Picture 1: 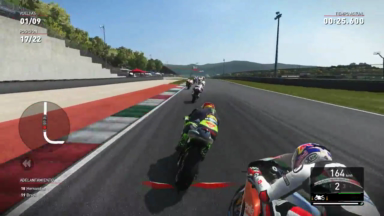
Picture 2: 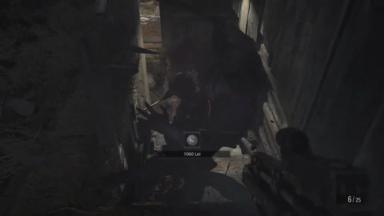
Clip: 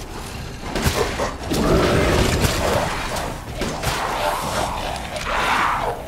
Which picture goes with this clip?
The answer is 2